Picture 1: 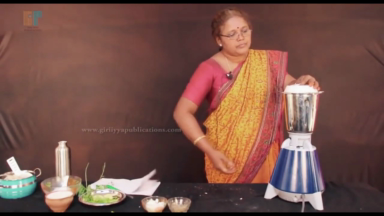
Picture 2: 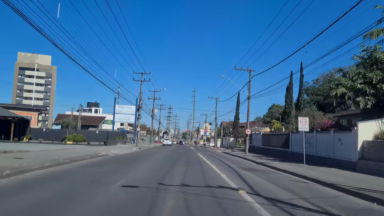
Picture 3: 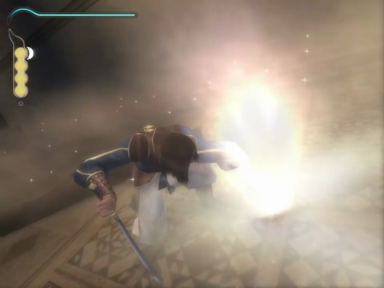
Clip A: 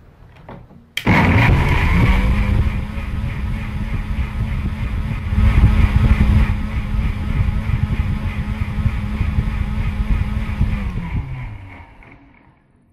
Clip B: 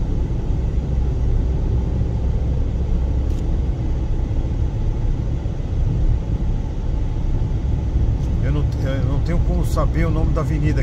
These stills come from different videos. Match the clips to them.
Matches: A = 1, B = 2